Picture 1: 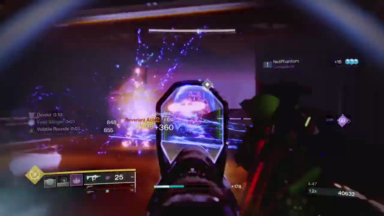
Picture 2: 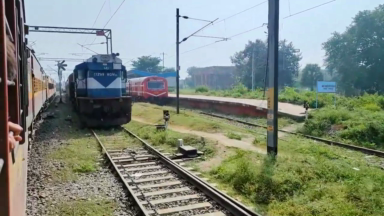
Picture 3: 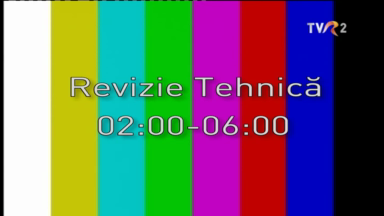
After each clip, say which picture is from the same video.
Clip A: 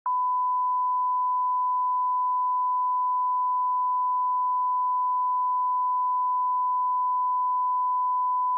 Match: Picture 3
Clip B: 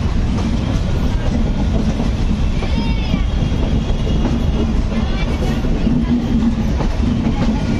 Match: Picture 2